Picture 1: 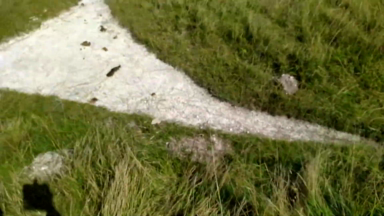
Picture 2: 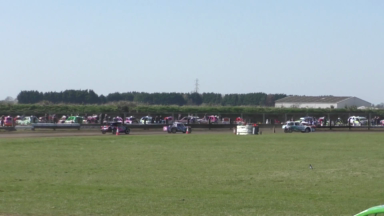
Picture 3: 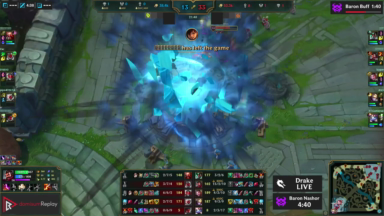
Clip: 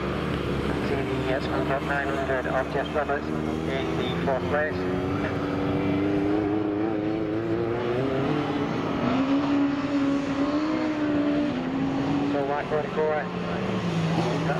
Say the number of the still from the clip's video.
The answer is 2